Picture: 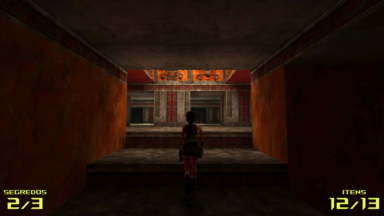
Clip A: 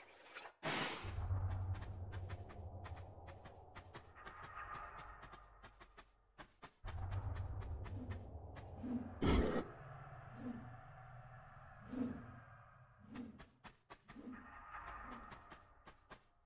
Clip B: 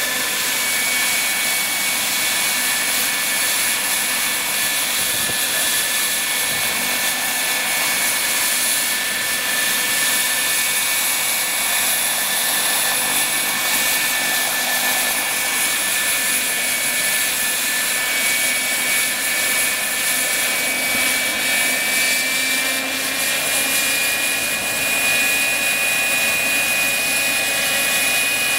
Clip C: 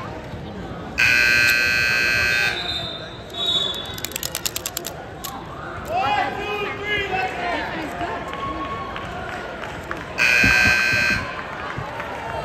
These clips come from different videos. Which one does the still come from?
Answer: A